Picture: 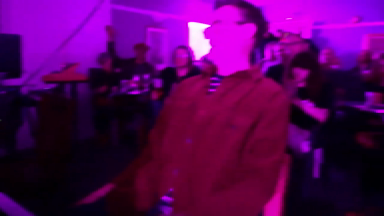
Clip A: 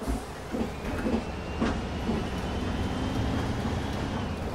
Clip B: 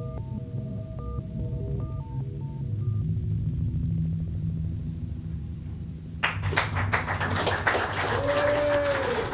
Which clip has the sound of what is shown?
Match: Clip B